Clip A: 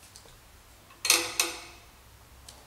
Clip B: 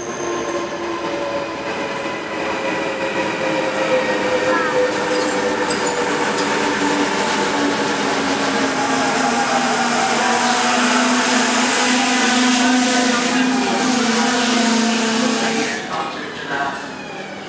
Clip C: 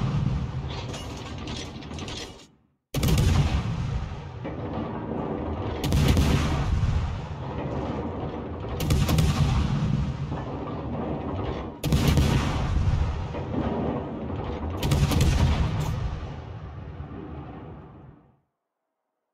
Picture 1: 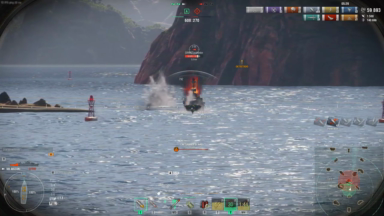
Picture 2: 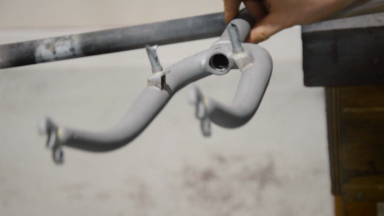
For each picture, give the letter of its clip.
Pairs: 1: C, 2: A